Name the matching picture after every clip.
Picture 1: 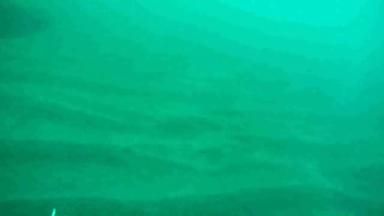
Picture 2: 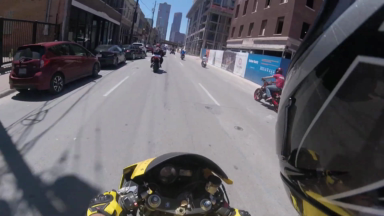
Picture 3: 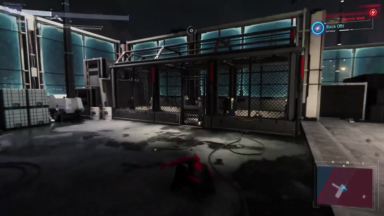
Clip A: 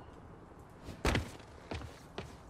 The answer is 3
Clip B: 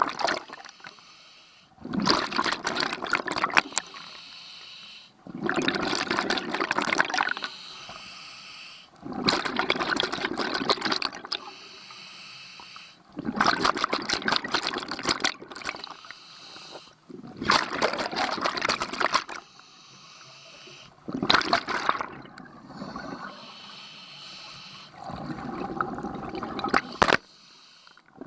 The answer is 1